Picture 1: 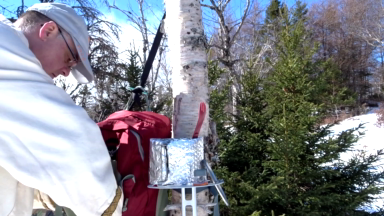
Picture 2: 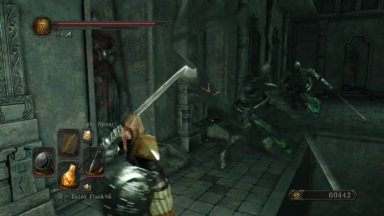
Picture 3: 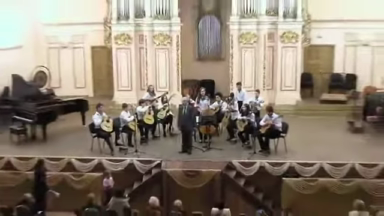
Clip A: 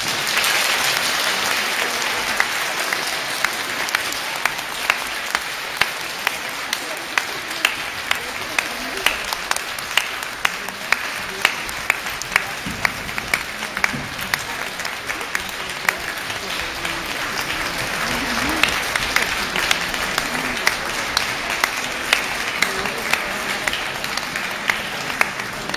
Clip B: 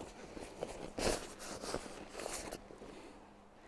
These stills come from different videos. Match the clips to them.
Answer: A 3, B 1